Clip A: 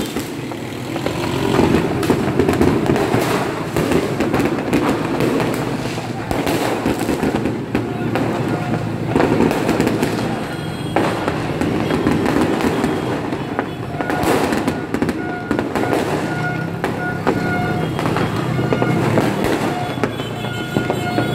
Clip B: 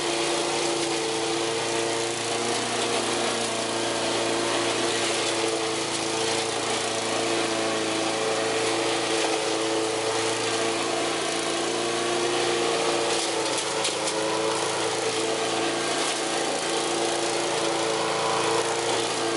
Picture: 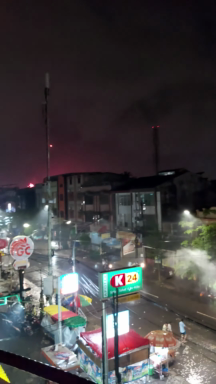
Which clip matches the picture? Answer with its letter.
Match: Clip A